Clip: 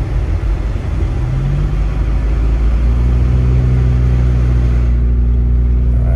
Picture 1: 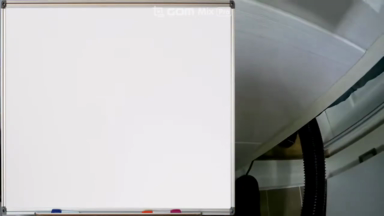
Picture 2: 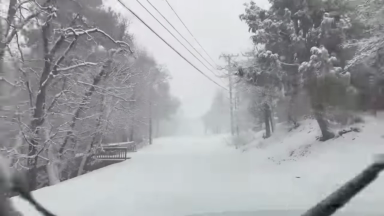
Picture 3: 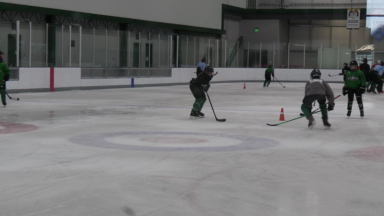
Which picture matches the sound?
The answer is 2